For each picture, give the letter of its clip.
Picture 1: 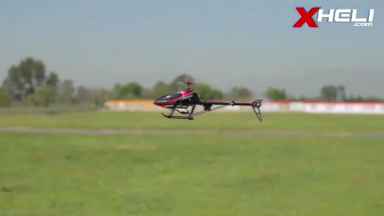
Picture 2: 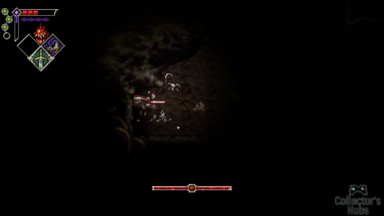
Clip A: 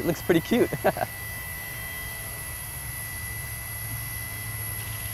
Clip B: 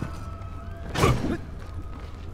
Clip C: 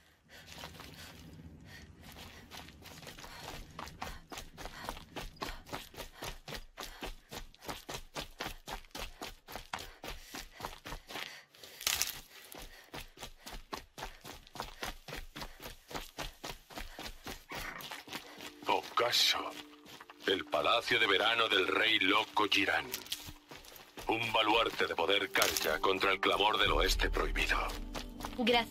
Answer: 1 A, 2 B